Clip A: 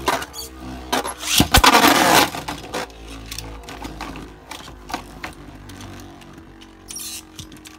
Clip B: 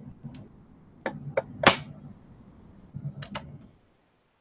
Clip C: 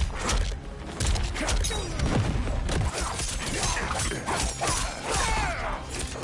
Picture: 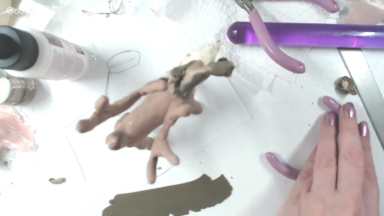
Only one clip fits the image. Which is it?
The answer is B